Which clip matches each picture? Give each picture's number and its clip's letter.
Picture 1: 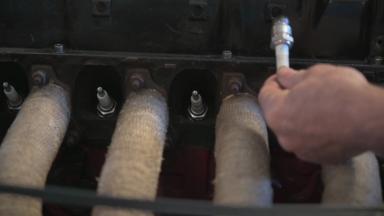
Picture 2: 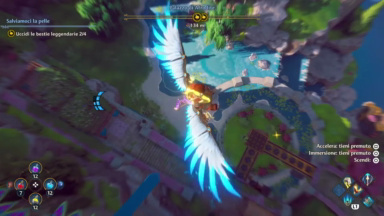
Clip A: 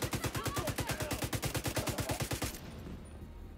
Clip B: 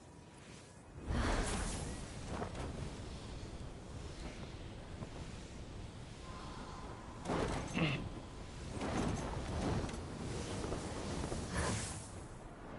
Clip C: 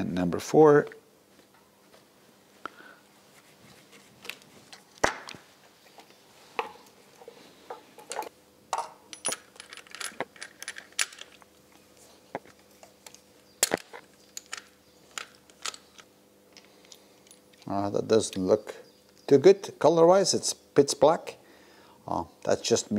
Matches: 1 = C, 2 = B